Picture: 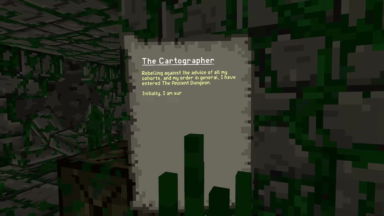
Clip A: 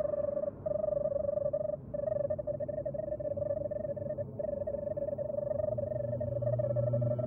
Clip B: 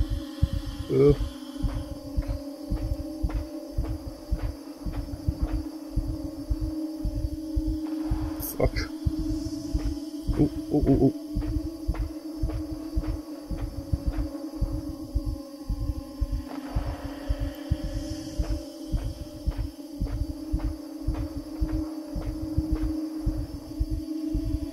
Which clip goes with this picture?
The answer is A